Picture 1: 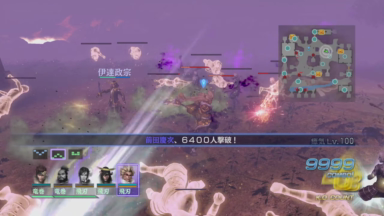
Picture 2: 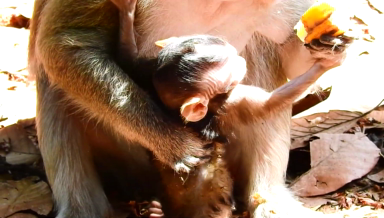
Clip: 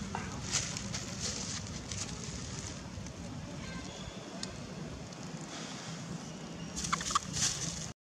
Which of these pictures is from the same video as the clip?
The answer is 2